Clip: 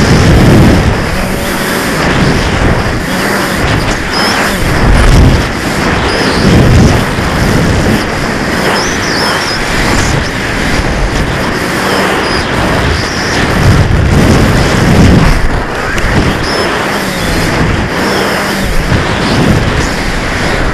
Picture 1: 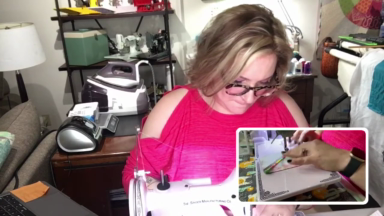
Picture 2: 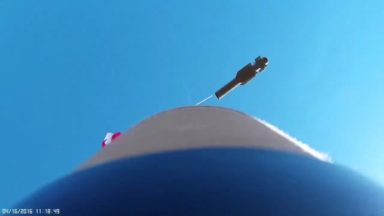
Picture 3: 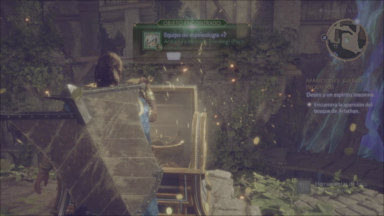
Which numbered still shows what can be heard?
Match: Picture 2